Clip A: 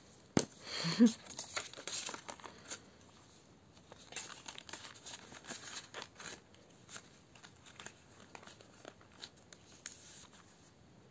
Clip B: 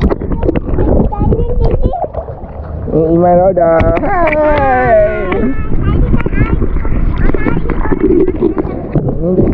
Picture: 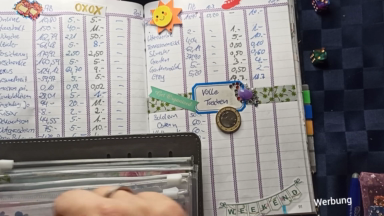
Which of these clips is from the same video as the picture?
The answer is A